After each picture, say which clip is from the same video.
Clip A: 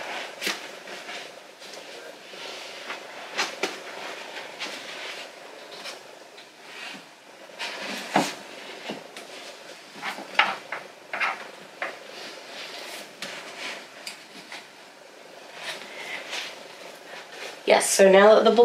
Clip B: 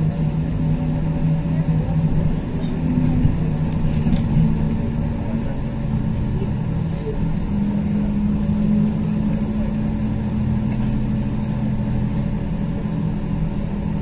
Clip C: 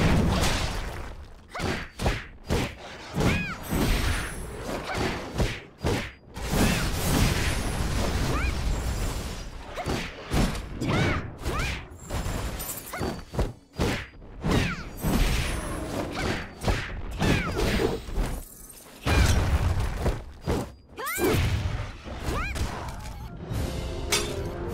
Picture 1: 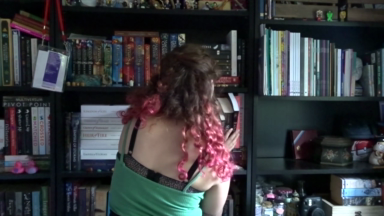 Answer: A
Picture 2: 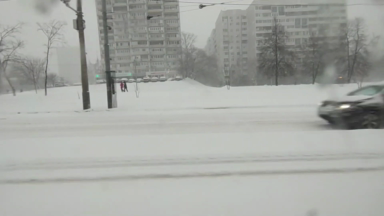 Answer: B